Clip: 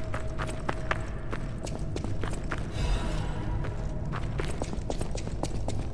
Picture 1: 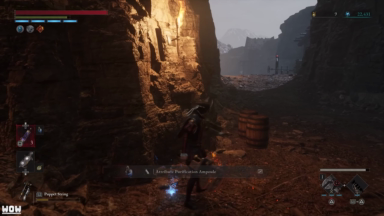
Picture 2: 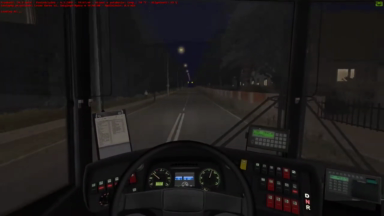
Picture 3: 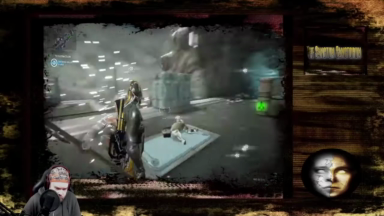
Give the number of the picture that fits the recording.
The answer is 1